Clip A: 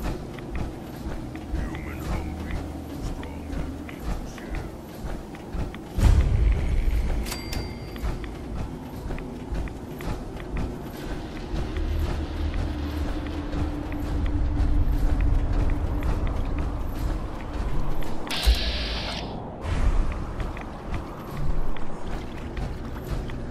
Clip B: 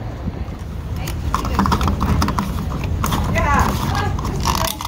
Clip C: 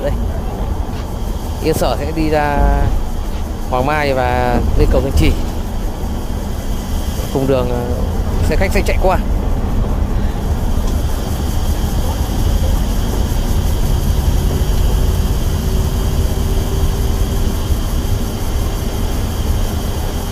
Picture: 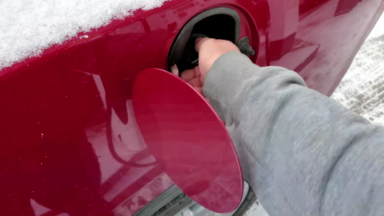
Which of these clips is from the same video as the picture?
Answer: B